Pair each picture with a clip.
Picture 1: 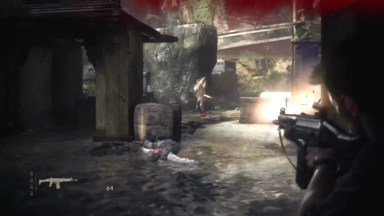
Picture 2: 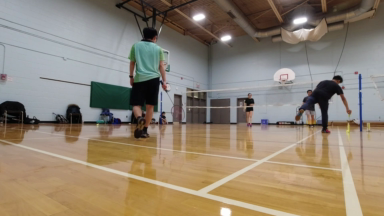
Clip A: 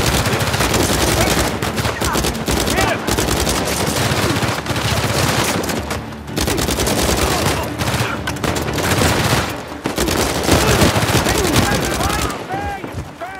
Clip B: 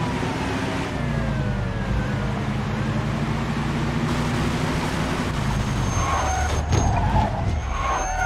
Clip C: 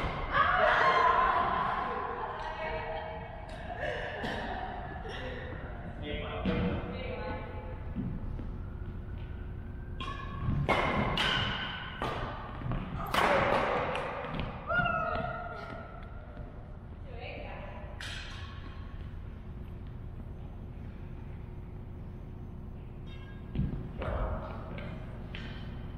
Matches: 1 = A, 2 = C